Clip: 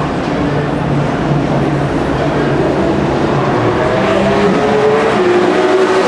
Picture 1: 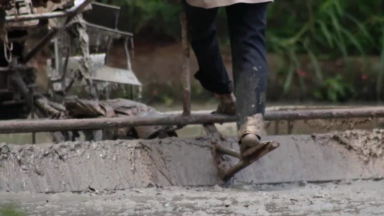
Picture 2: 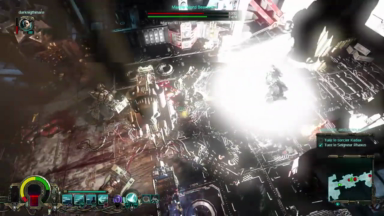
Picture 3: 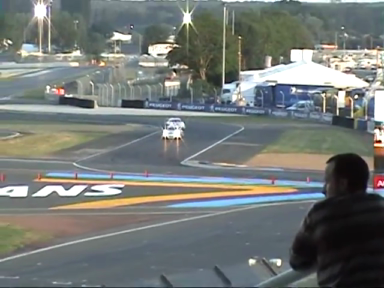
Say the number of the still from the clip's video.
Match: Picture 3